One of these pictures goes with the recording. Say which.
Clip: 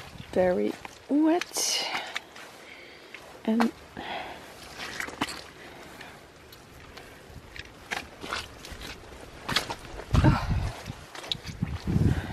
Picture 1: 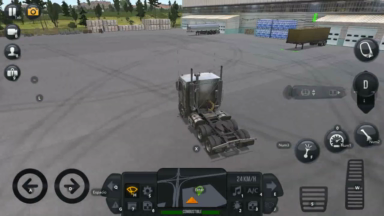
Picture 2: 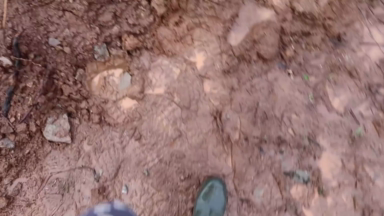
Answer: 2